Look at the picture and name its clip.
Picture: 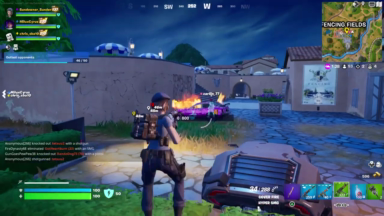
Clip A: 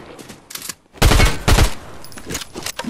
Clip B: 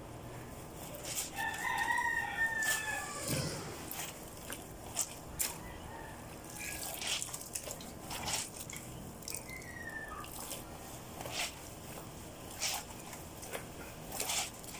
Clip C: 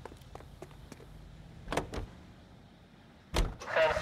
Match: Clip A